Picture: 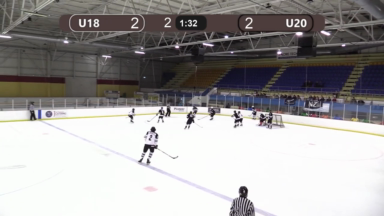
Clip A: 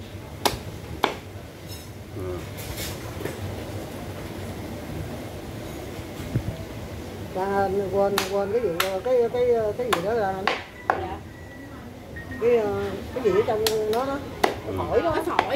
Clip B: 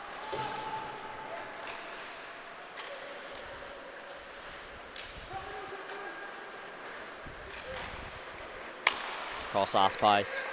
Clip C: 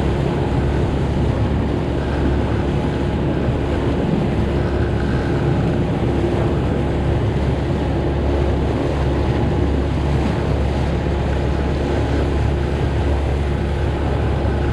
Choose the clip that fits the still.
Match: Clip B